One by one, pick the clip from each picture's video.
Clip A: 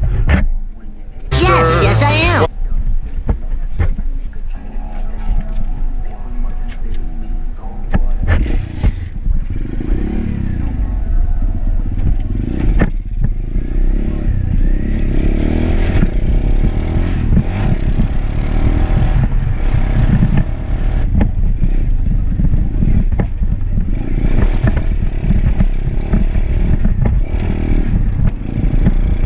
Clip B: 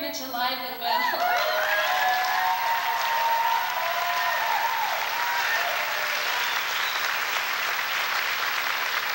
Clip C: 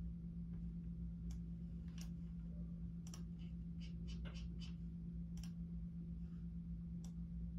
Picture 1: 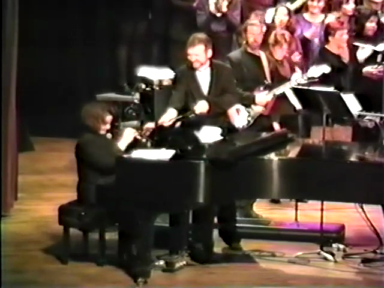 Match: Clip B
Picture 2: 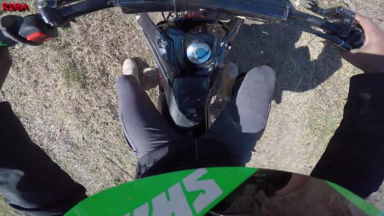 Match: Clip A